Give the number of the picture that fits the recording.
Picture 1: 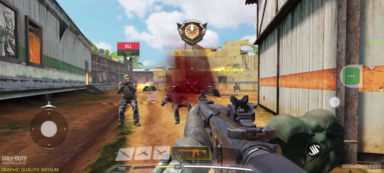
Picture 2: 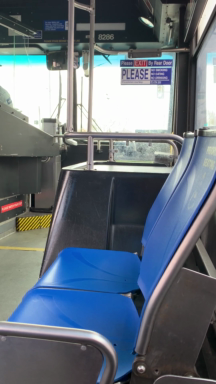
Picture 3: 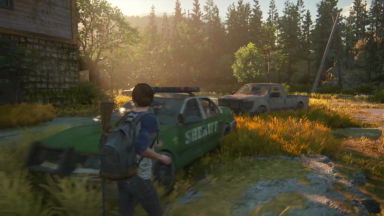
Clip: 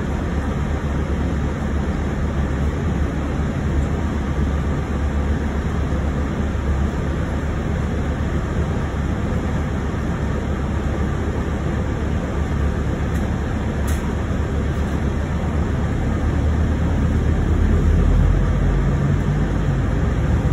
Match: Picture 2